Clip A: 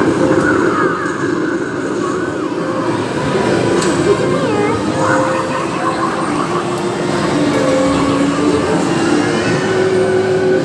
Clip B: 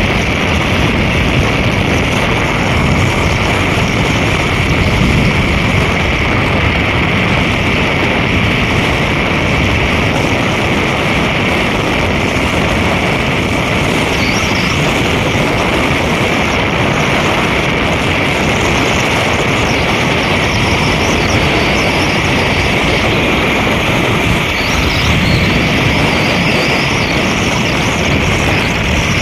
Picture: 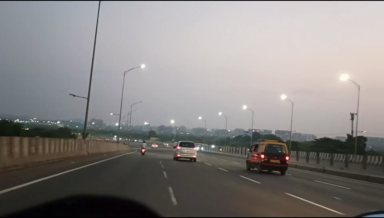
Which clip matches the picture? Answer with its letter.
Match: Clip B